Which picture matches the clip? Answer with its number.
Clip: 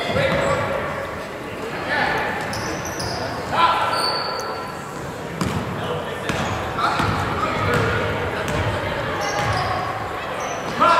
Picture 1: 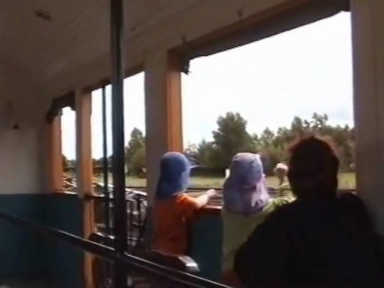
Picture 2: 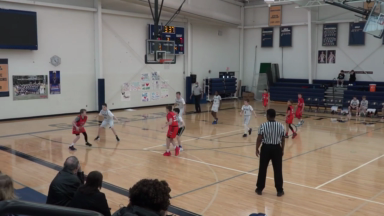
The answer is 2